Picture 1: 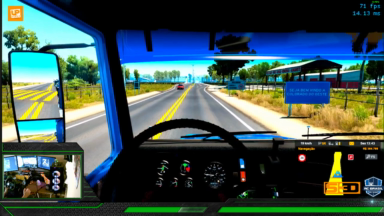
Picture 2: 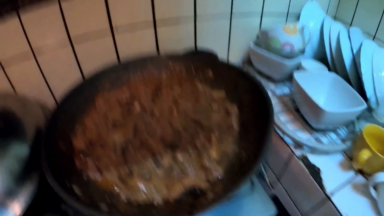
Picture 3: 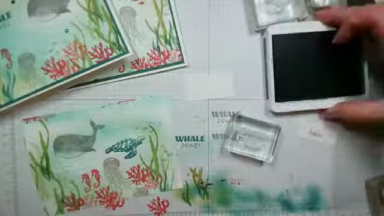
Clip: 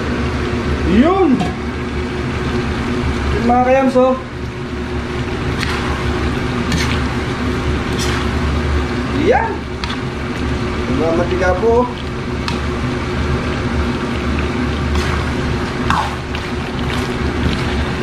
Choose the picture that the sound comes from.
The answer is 2